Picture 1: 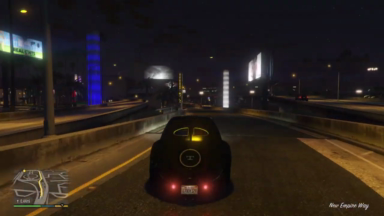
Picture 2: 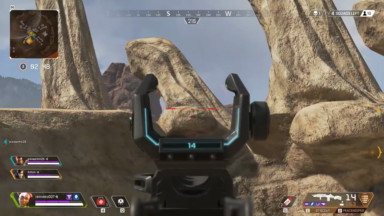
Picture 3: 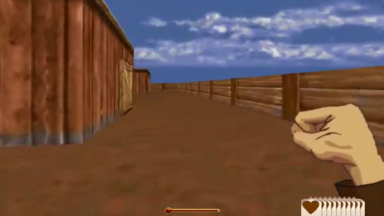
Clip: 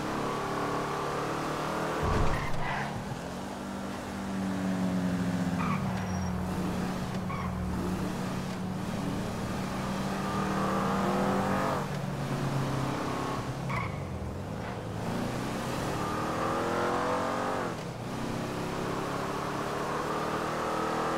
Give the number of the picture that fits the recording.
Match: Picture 1